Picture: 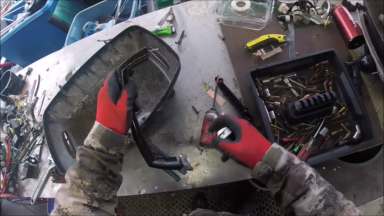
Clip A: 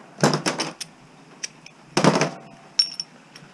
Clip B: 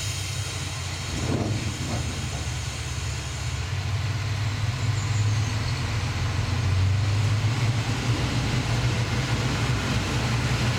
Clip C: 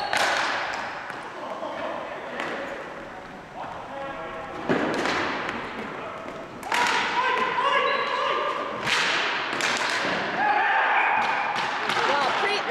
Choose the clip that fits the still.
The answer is A